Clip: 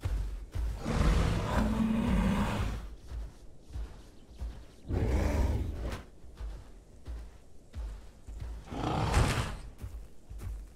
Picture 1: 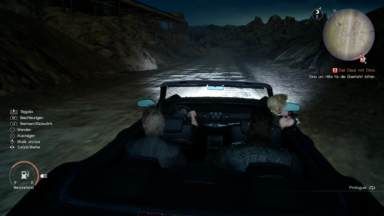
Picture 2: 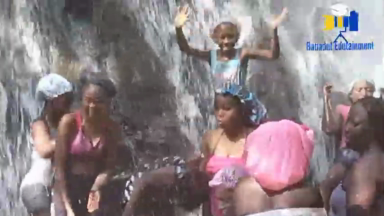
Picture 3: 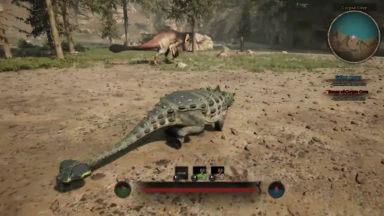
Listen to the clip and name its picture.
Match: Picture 3